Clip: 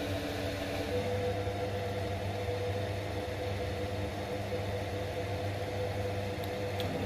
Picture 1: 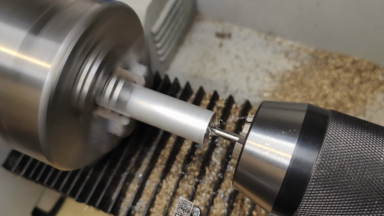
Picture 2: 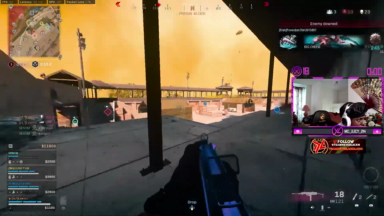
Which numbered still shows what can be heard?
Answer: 1